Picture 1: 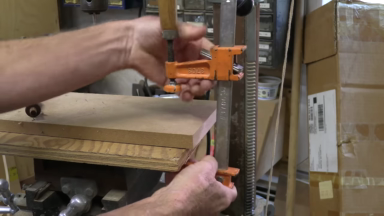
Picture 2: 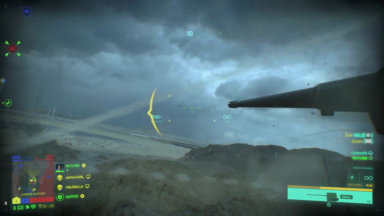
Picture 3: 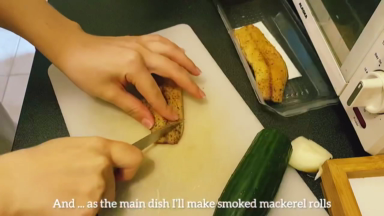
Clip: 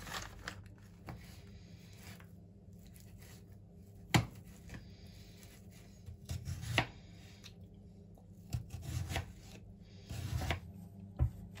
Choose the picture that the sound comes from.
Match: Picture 3